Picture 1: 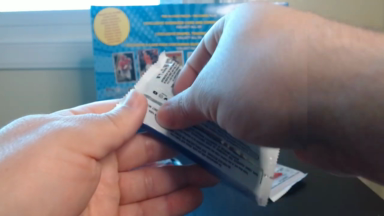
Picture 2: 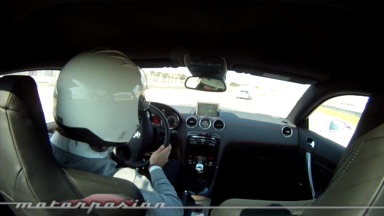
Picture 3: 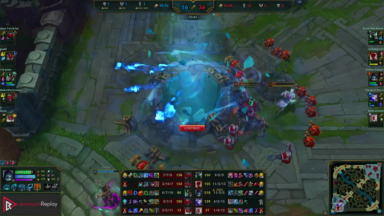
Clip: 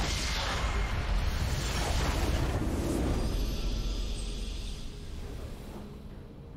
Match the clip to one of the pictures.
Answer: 3